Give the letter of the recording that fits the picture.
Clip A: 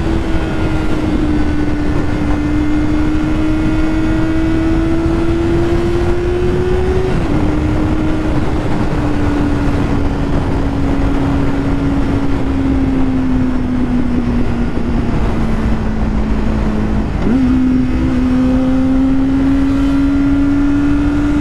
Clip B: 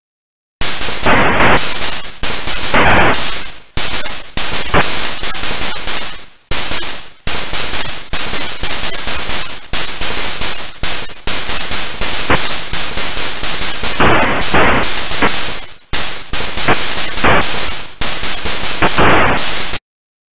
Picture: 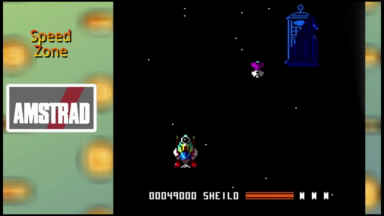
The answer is B